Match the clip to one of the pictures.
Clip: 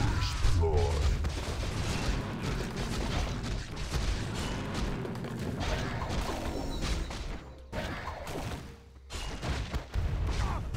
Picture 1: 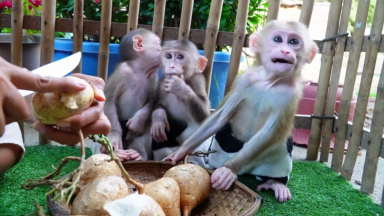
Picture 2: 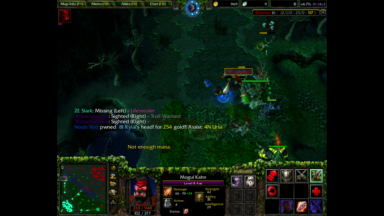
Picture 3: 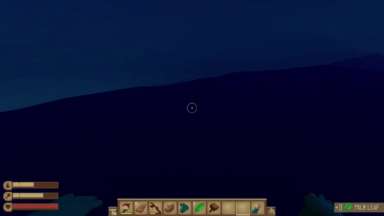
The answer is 2